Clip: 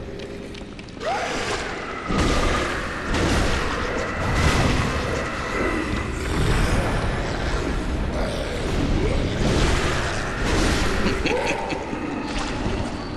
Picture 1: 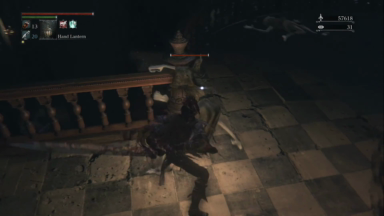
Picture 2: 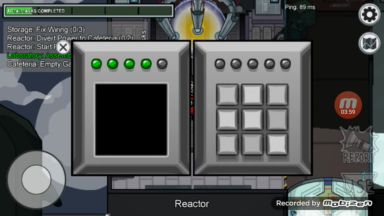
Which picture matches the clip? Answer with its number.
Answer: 1